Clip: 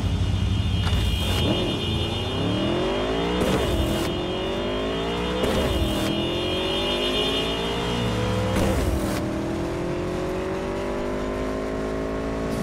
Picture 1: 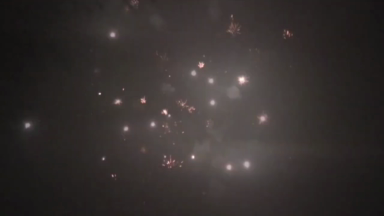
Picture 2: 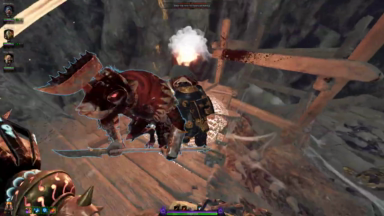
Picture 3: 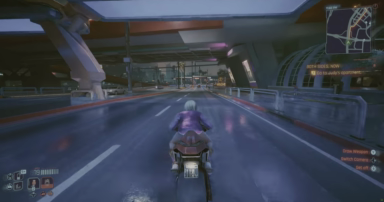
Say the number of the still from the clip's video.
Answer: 3